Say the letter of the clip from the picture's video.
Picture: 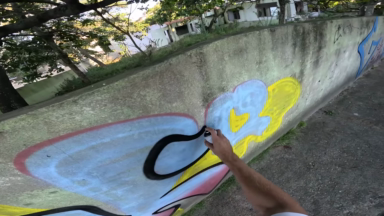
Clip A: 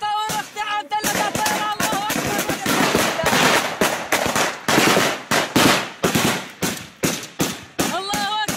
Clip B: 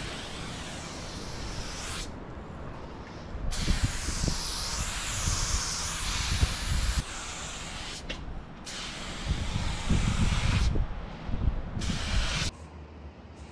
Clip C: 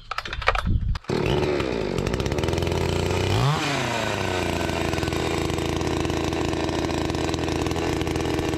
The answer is B